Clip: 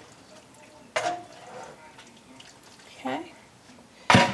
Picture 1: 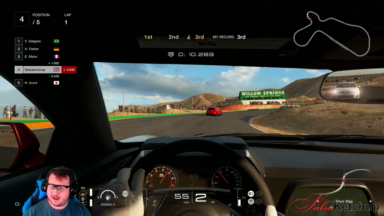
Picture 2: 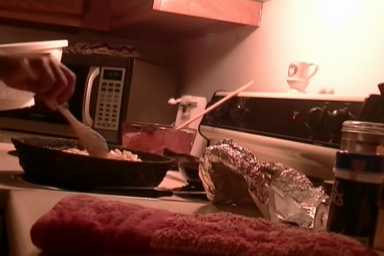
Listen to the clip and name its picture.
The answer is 2